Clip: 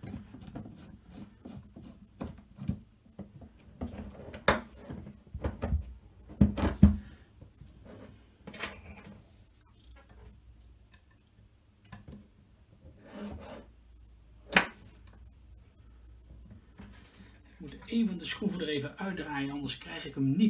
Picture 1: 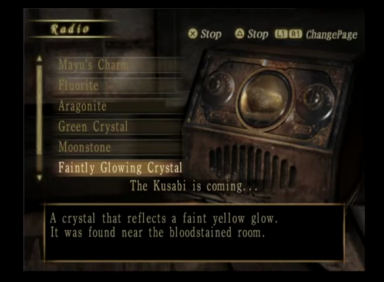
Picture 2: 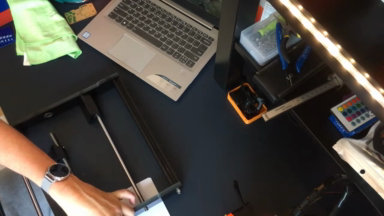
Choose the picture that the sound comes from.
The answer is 2